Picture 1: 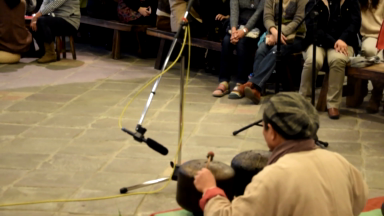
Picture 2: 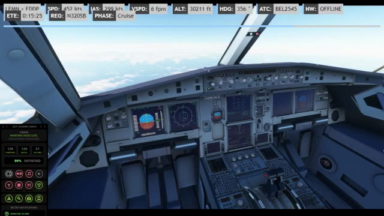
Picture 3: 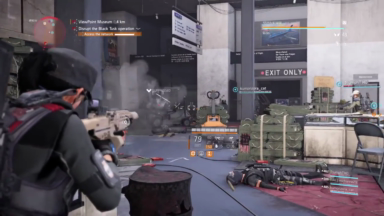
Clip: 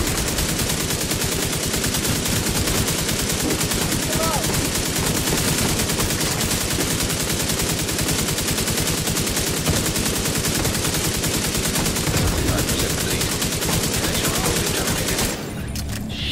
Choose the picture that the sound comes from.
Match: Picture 3